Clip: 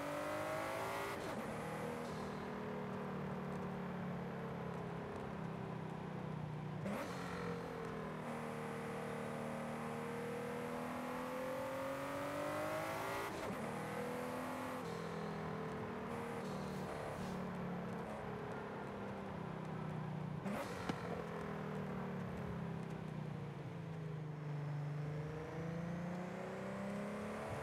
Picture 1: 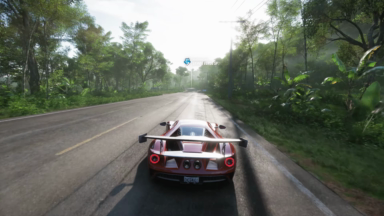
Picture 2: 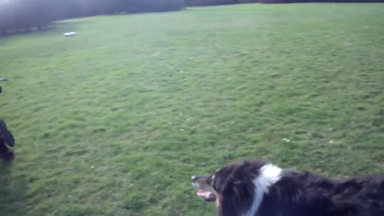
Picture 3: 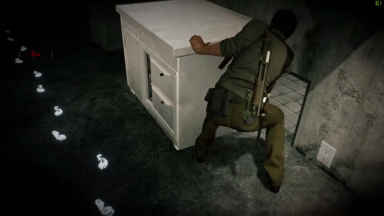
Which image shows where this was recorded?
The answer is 1